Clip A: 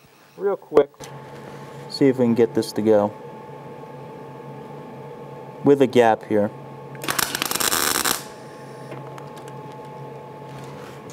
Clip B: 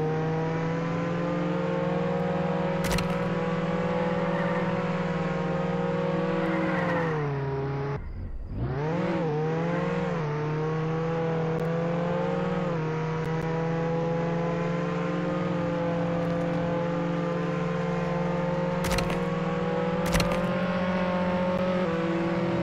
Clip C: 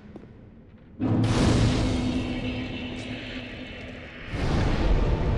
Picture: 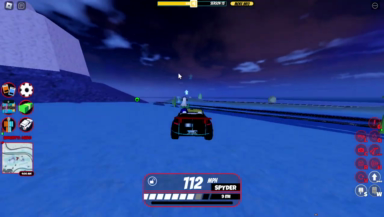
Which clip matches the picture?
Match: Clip B